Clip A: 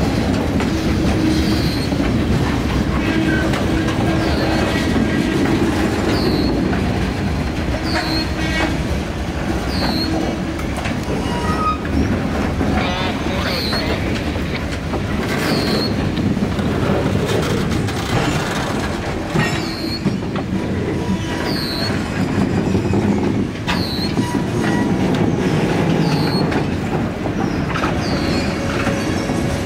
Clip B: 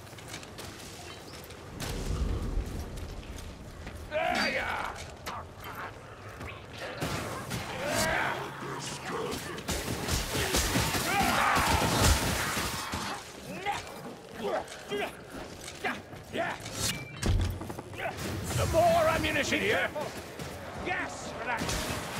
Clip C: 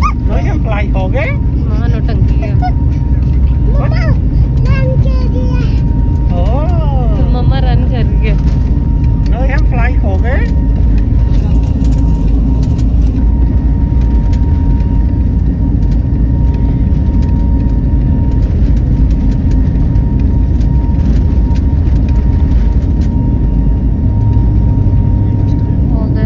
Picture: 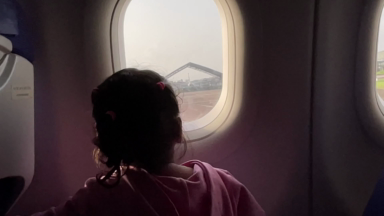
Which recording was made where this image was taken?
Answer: C